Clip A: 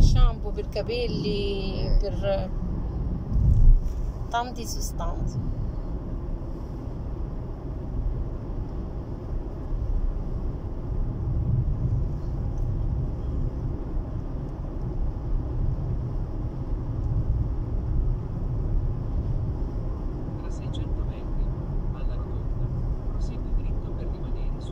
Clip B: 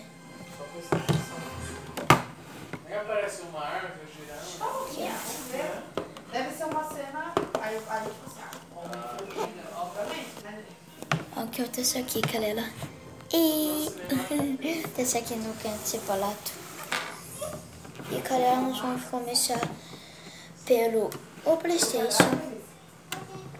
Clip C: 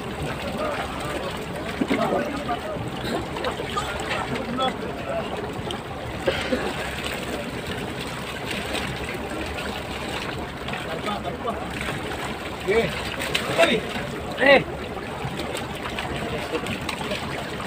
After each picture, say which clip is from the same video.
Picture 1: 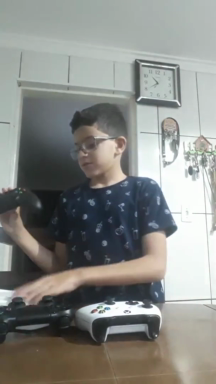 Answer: B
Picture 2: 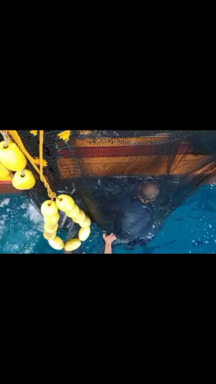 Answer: C